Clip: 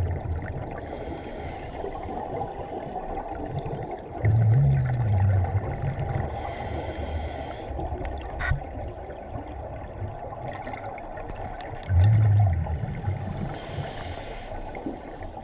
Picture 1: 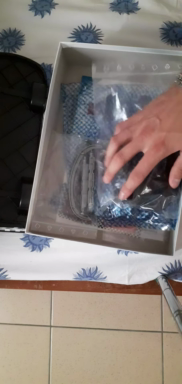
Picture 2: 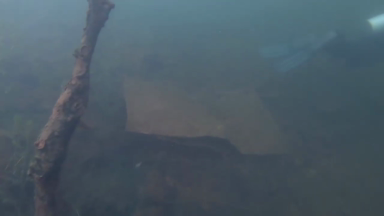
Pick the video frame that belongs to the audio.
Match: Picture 2